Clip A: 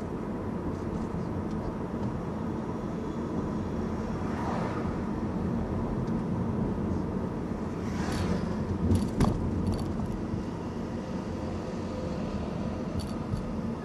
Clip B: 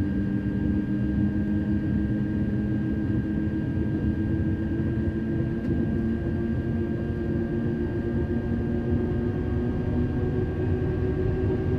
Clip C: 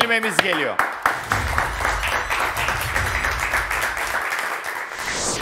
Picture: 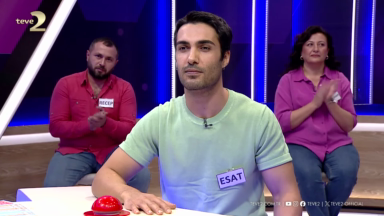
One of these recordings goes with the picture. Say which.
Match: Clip C